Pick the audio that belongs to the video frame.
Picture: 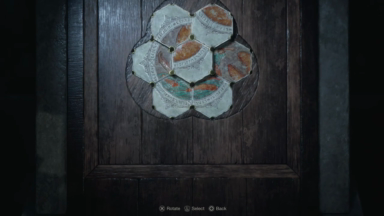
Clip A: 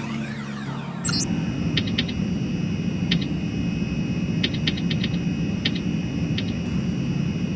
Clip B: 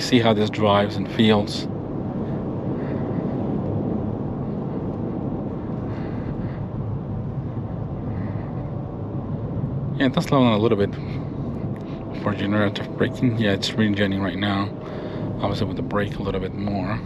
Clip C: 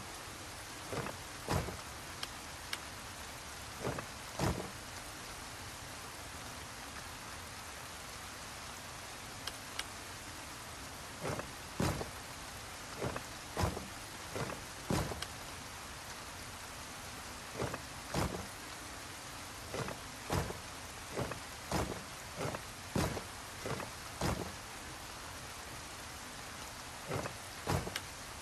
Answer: C